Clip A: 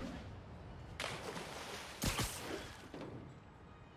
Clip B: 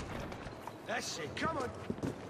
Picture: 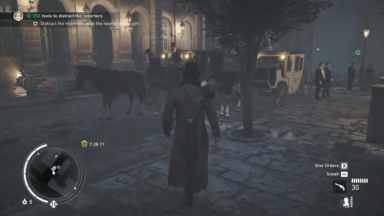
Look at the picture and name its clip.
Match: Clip B